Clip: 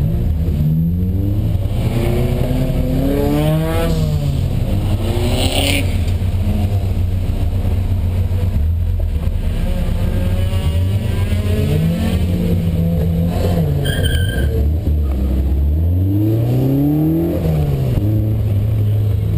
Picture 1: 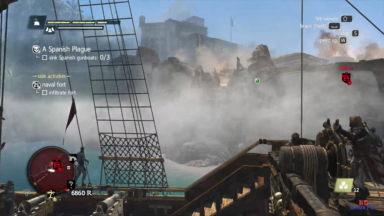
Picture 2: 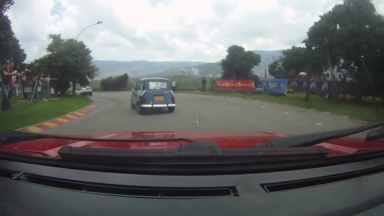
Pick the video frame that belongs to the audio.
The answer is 2